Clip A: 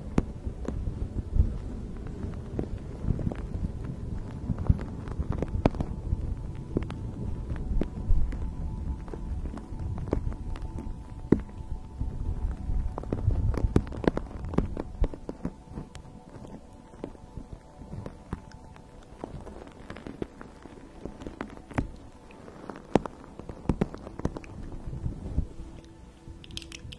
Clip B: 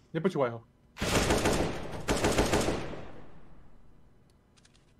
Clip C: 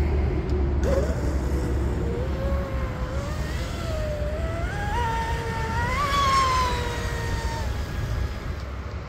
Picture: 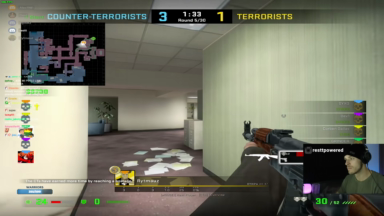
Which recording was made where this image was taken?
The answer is B